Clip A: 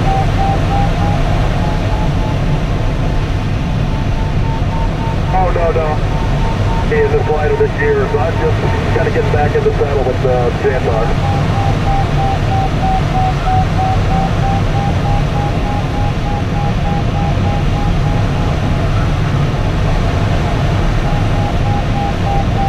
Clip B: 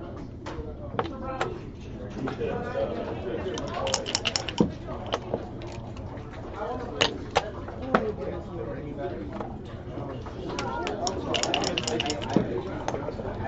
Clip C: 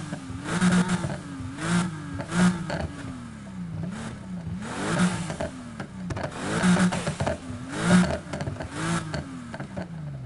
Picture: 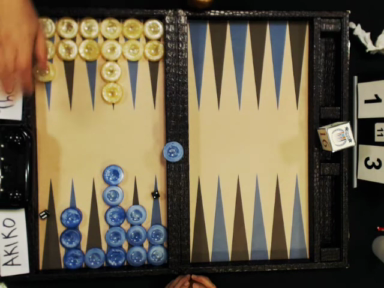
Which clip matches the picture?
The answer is B